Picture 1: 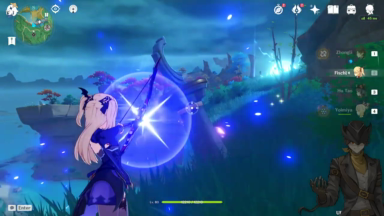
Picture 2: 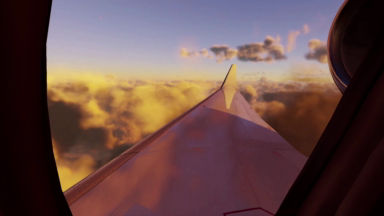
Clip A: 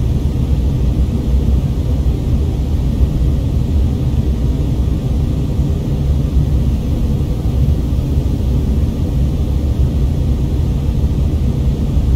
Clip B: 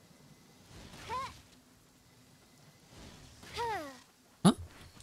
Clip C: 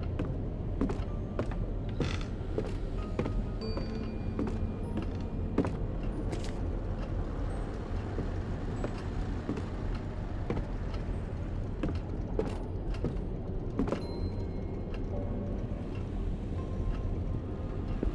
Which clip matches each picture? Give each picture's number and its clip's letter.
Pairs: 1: B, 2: A